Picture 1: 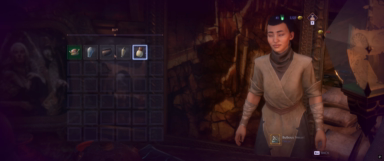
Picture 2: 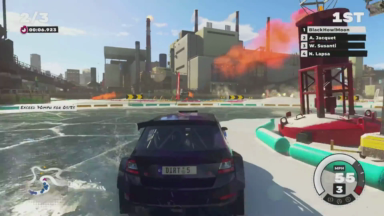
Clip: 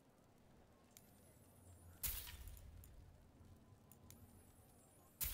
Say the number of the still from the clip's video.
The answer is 1